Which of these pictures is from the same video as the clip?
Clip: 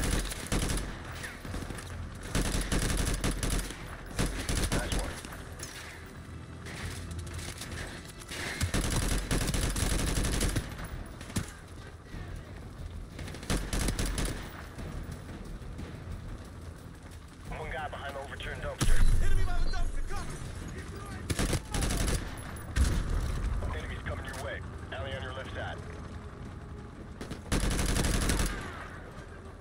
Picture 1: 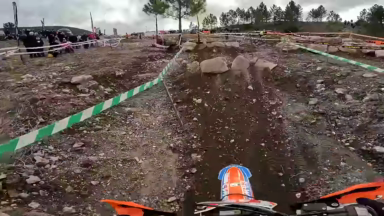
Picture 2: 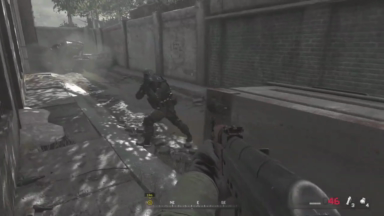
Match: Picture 2